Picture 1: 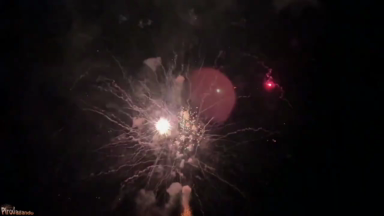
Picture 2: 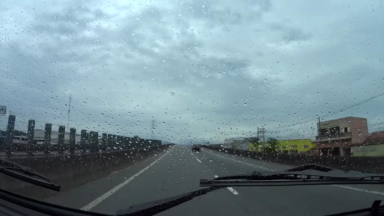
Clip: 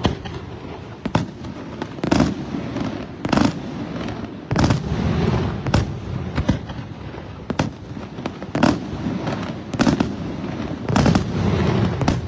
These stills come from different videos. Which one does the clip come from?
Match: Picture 1